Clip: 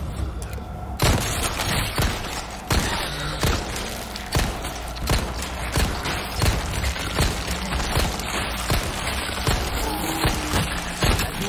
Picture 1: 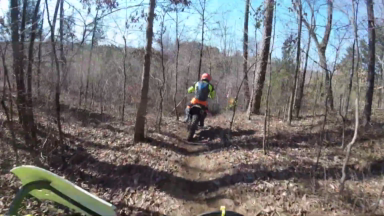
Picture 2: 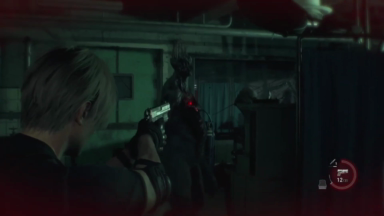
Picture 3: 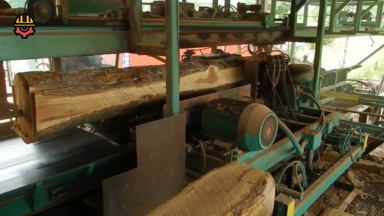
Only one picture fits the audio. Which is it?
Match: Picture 2